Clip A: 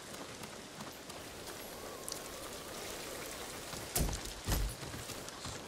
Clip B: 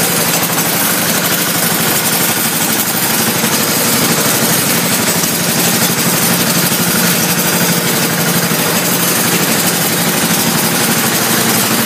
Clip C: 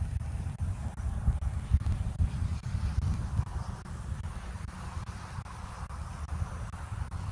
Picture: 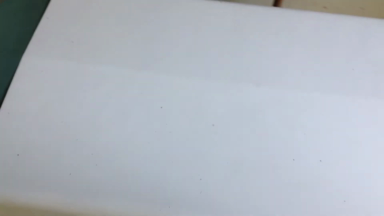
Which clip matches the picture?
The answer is B